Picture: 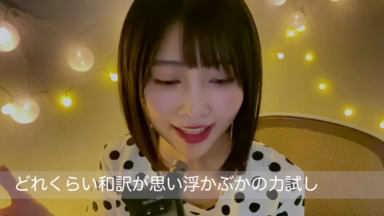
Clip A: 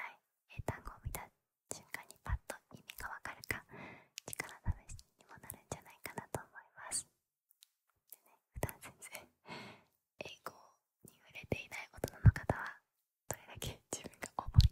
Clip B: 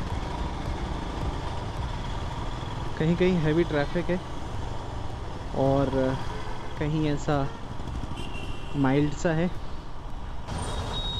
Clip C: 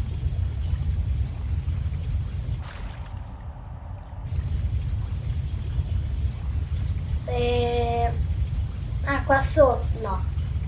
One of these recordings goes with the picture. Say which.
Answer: A